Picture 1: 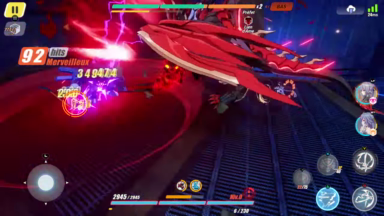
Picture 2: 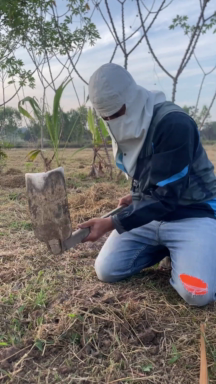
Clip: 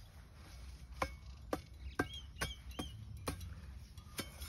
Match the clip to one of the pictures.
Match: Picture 2